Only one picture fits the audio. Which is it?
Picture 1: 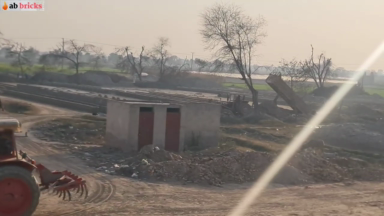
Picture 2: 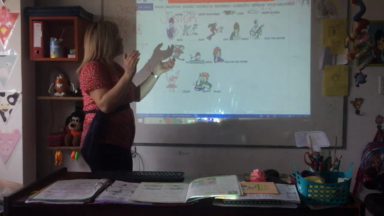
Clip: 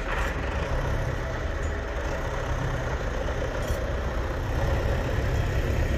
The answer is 1